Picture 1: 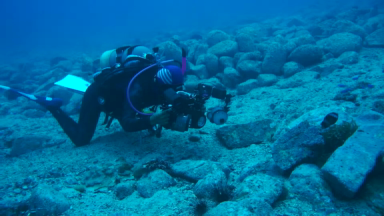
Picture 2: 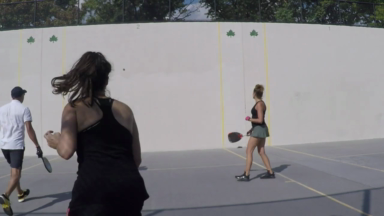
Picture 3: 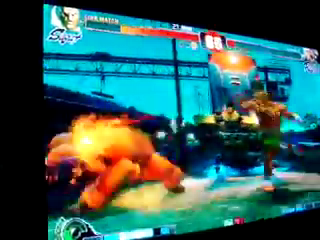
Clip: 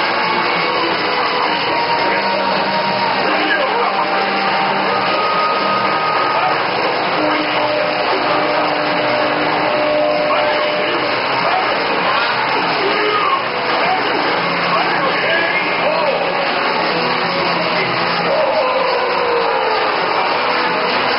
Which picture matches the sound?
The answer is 3